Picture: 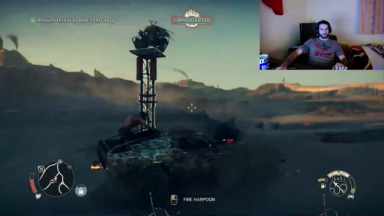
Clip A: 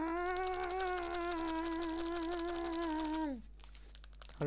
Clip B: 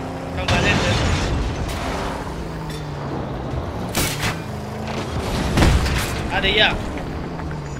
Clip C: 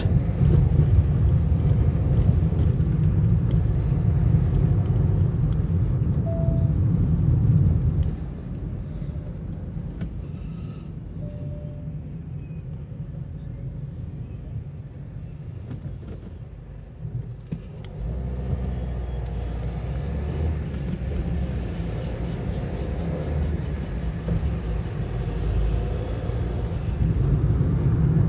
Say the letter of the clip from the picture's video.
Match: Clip B